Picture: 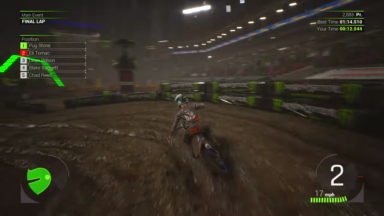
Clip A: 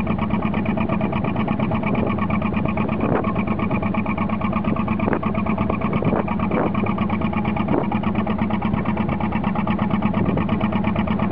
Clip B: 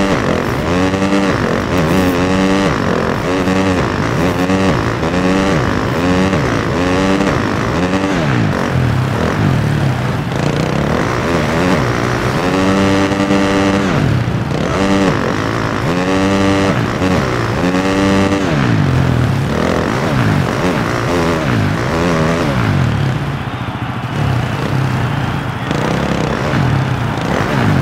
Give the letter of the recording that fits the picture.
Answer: B